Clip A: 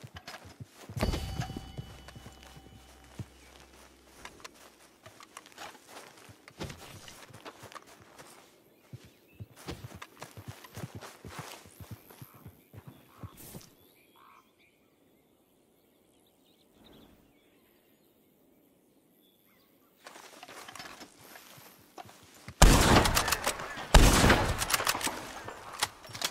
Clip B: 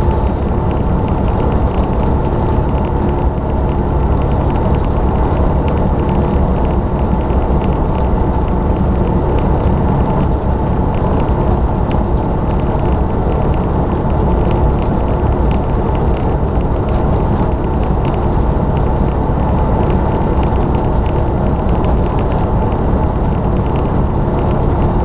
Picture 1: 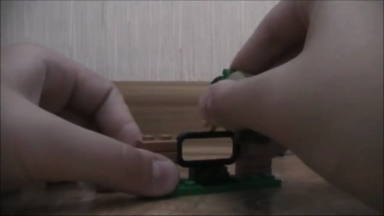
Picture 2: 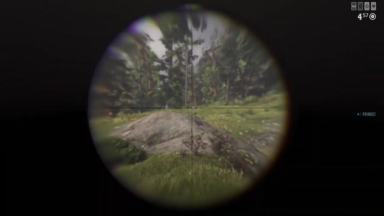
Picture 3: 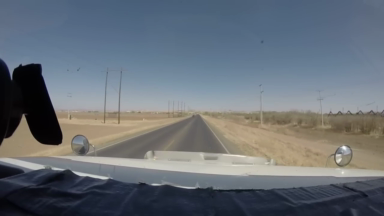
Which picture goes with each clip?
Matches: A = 2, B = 3